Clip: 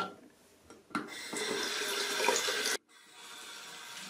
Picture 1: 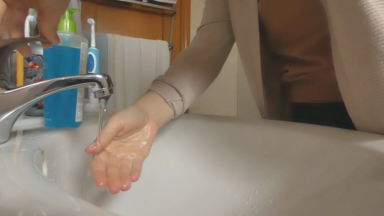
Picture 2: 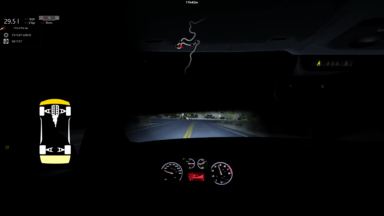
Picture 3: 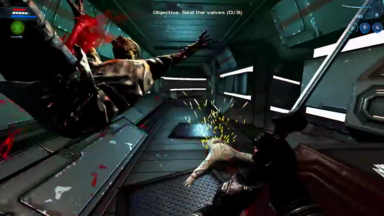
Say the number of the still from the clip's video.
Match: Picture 1